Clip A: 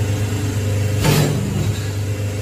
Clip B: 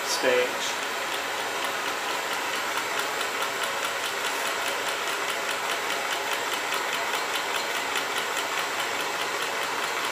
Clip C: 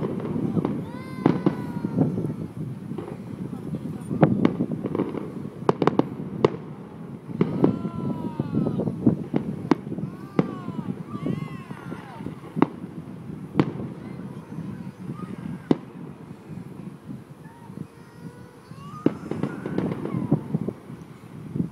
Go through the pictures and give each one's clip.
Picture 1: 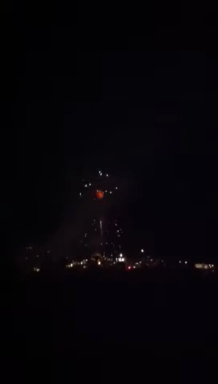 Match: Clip C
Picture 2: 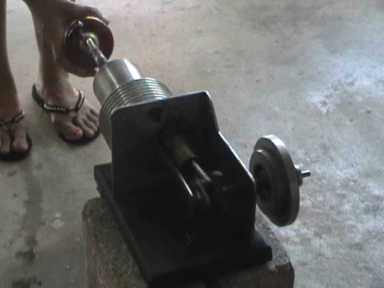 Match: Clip B